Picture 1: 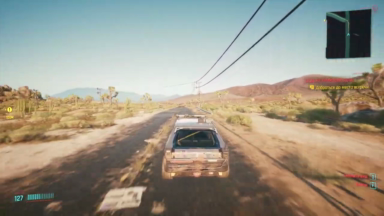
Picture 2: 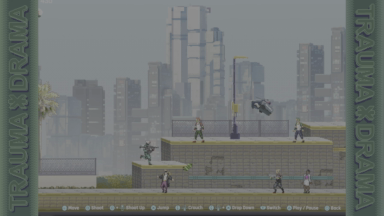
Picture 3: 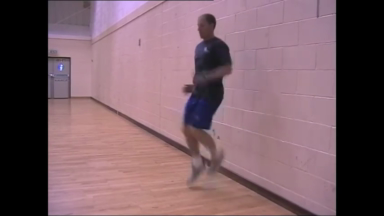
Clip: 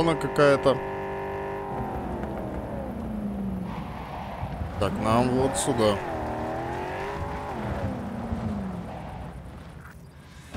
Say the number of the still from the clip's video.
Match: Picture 1